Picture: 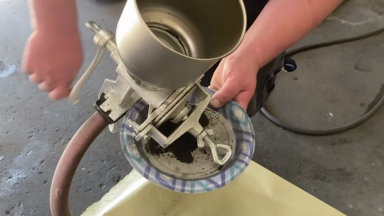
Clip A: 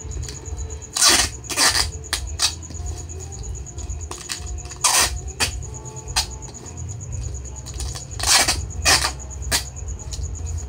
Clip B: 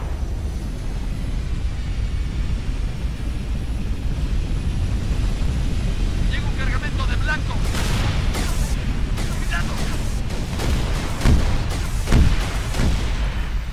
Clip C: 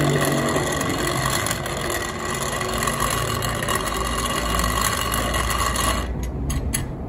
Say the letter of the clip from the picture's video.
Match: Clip C